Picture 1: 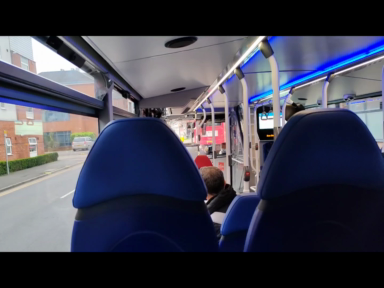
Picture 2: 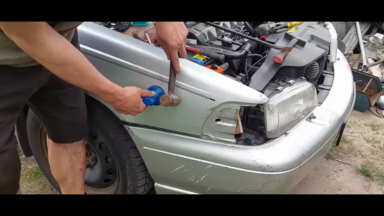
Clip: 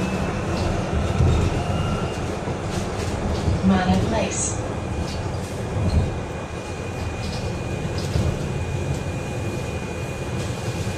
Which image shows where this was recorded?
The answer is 1